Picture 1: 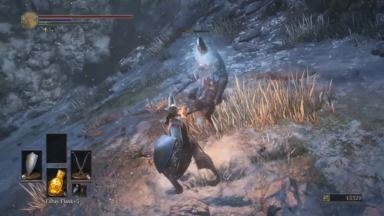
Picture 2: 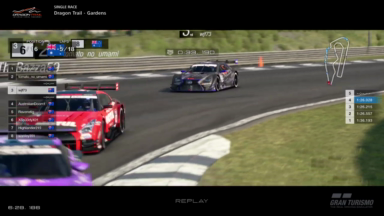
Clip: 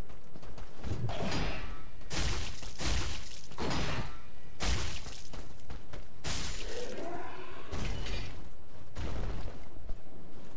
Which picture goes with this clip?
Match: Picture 1